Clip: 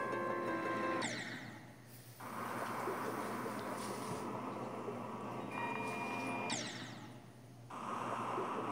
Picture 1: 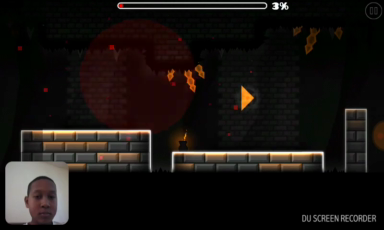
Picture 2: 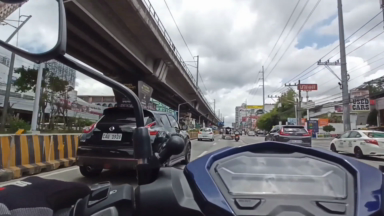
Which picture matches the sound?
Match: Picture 1